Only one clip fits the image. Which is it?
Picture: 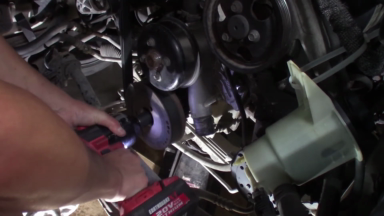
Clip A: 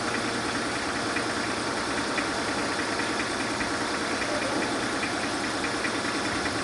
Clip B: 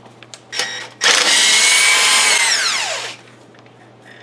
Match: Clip B